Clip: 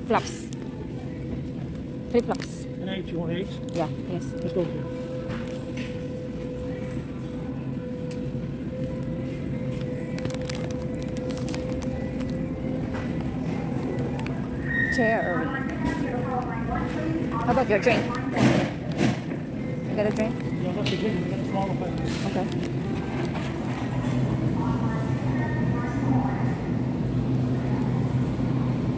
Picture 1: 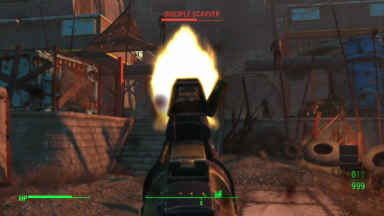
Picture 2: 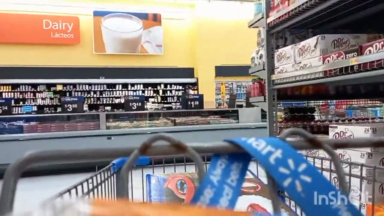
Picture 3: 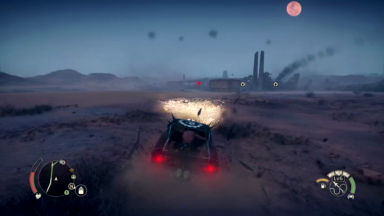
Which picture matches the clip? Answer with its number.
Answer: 2